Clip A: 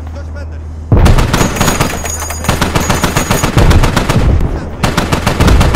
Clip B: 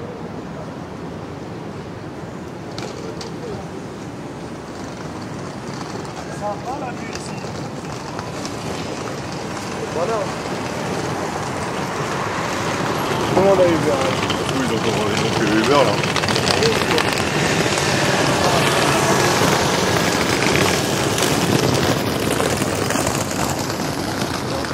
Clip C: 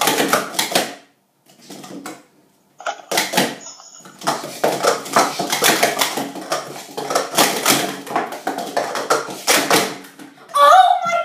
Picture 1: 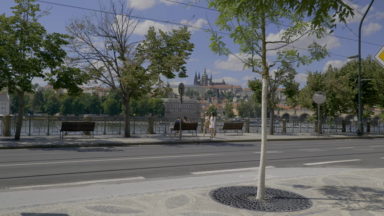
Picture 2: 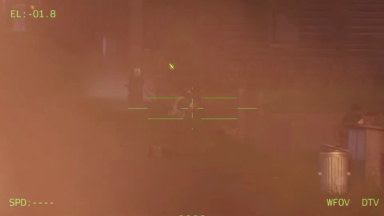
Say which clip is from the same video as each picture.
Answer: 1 B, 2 A